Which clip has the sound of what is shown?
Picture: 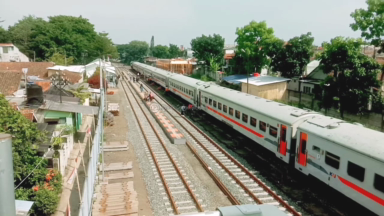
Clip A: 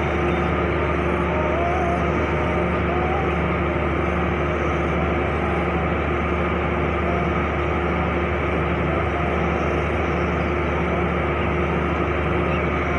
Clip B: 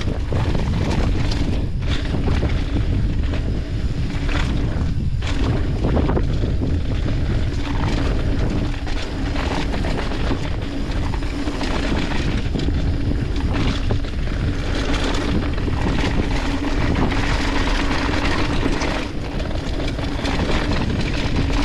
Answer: A